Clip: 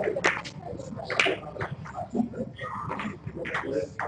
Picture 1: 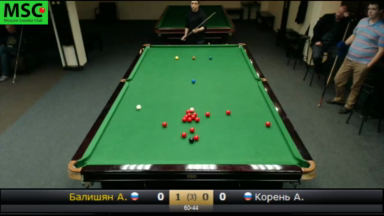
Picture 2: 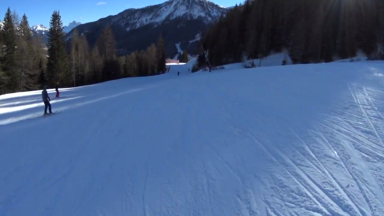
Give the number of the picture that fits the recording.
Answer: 1